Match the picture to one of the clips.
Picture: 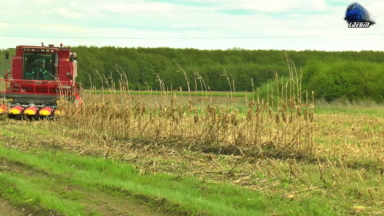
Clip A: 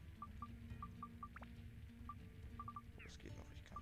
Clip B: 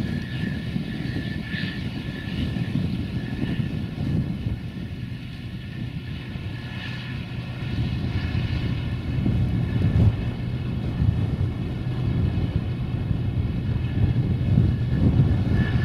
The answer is B